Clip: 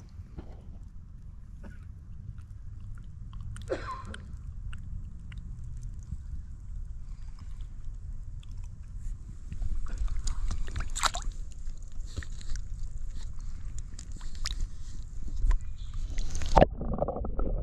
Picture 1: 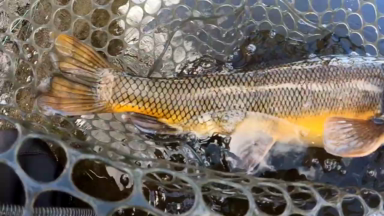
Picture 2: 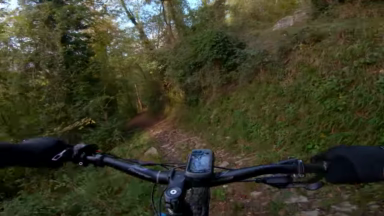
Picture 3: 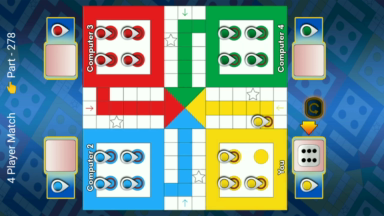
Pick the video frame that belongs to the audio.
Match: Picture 1